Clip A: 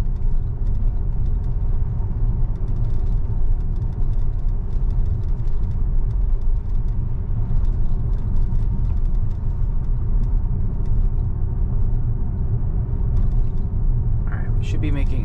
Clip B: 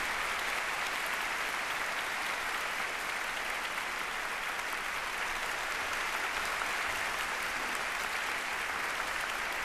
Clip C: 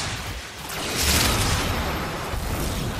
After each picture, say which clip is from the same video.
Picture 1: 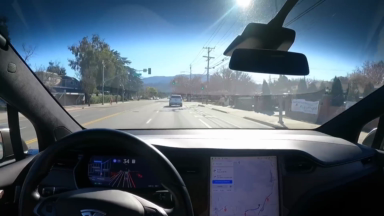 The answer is A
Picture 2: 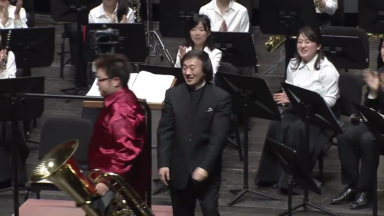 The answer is B